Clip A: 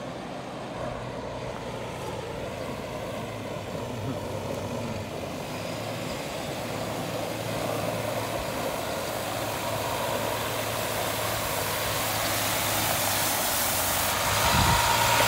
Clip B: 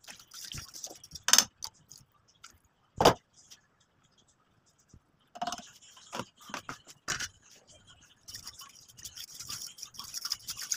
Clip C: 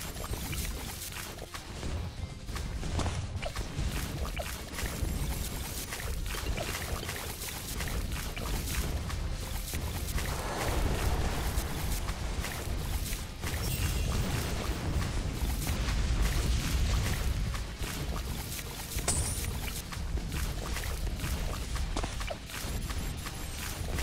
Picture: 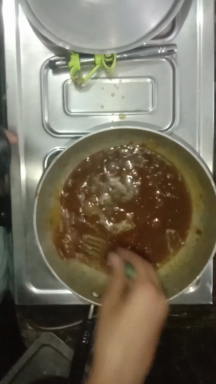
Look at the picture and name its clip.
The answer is B